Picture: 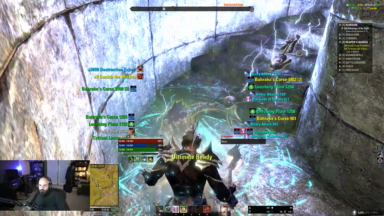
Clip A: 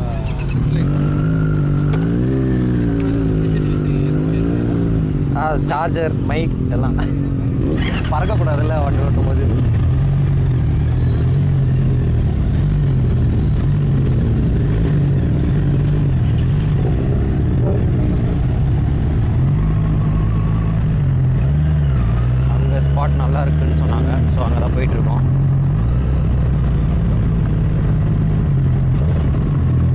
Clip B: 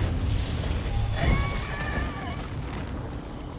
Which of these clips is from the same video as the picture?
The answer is B